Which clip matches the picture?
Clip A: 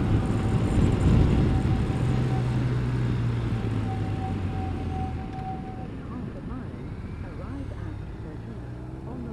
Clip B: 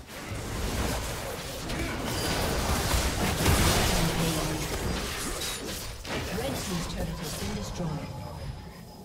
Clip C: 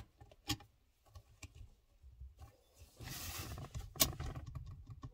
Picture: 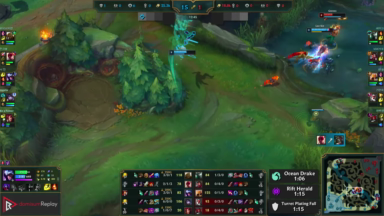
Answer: B